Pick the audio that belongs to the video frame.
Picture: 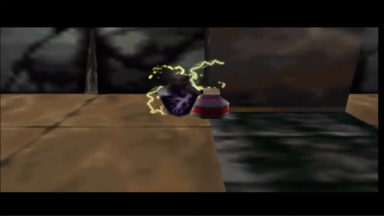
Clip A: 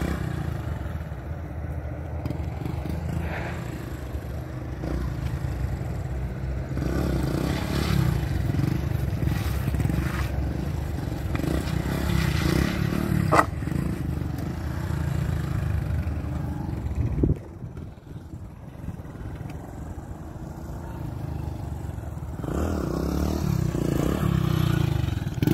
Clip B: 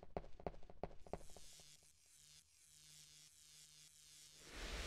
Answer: B